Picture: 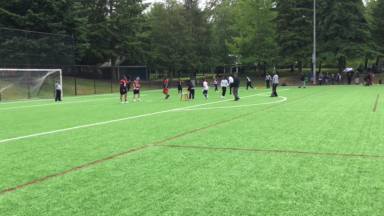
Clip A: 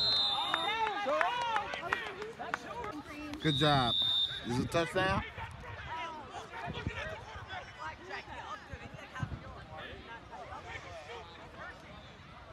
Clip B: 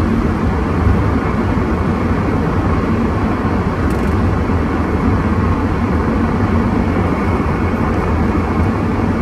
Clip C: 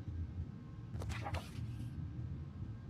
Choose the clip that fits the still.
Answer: A